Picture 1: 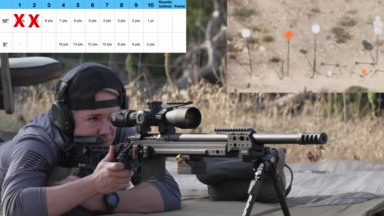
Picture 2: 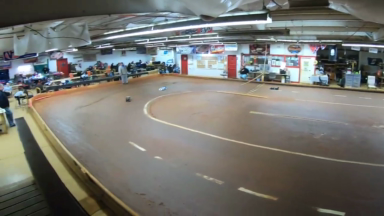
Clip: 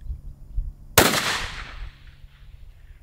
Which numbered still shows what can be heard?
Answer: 1